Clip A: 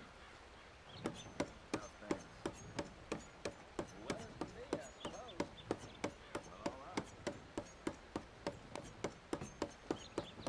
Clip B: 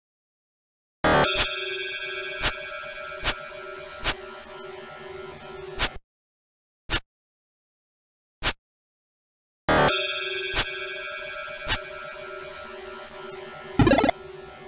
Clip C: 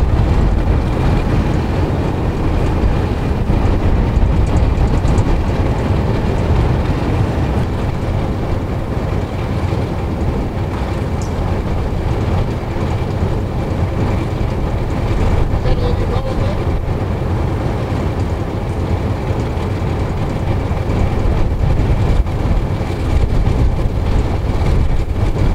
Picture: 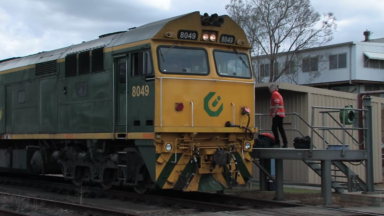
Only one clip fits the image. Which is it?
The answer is C